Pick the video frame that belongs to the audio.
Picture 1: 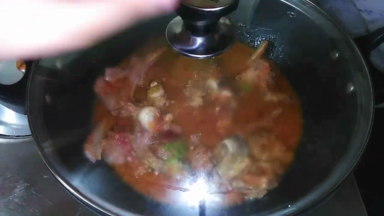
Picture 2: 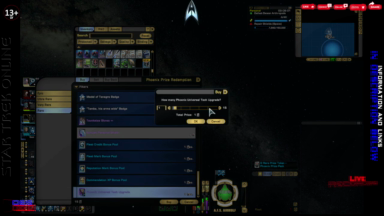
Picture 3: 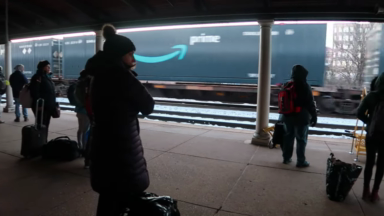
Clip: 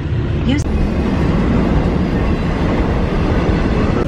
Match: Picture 3